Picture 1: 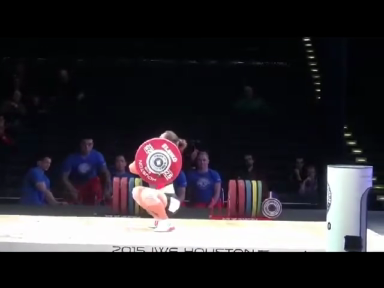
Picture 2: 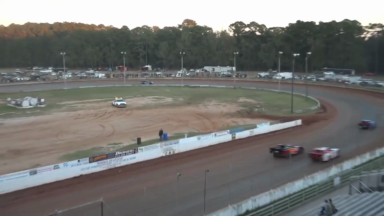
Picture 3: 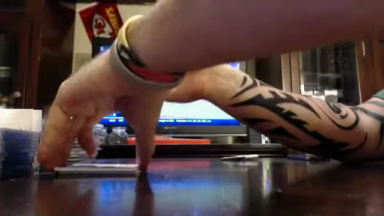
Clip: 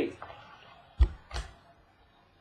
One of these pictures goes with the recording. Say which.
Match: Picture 3